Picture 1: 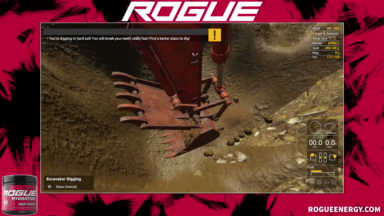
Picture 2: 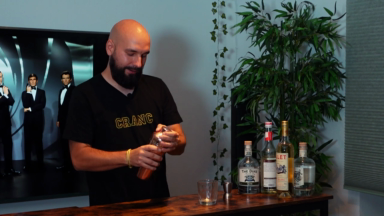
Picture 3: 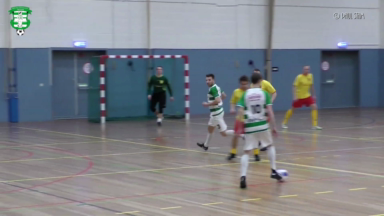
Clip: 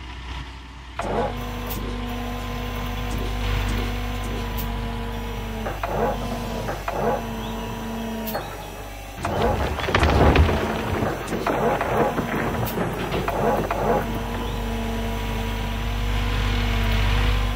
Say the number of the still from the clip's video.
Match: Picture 1